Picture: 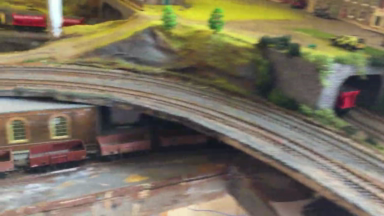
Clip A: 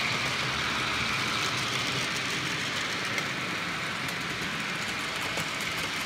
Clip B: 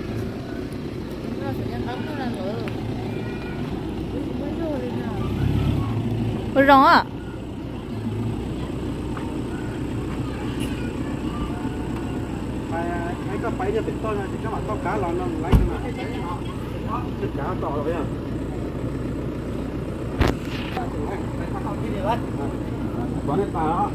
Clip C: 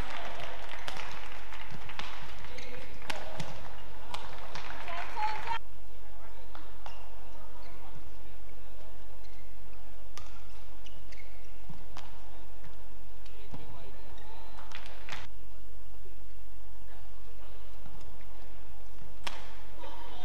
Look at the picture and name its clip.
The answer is A